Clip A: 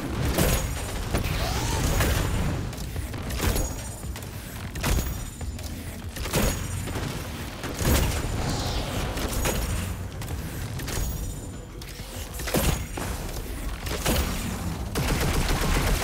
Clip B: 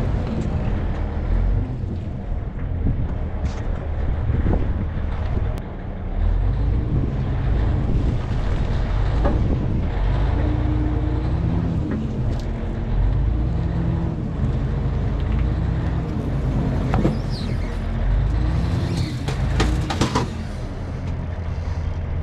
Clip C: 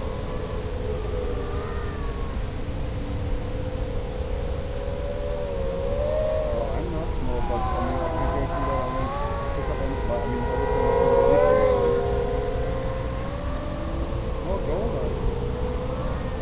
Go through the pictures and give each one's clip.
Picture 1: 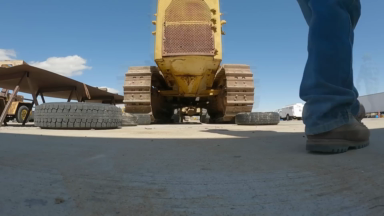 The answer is B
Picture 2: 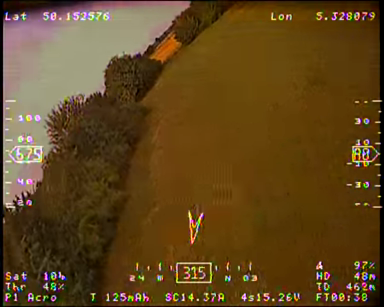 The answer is C